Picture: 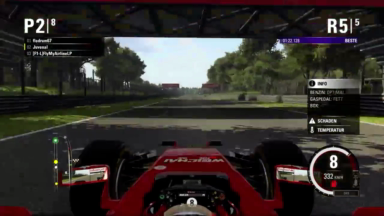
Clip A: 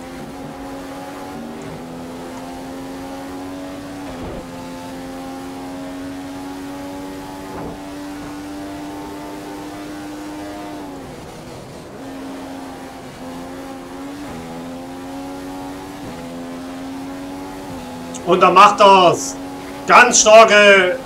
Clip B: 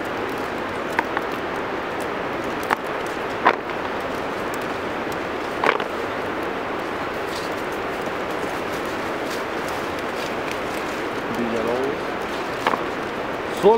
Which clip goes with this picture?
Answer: A